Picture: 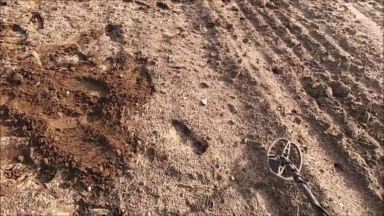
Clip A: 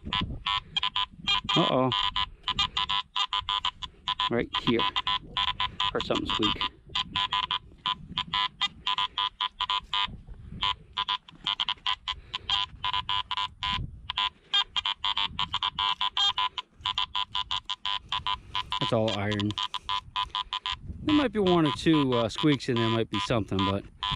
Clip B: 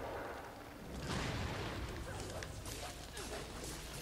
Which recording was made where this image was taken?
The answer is A